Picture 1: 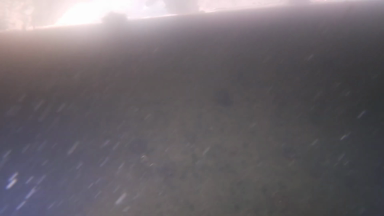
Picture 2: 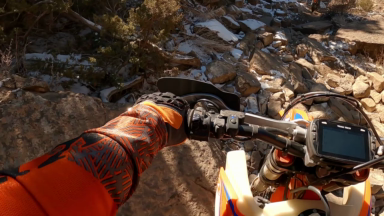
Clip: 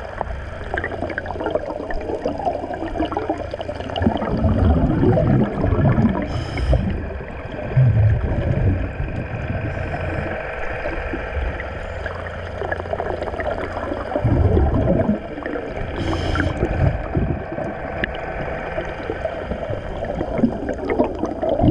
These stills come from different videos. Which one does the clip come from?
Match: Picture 1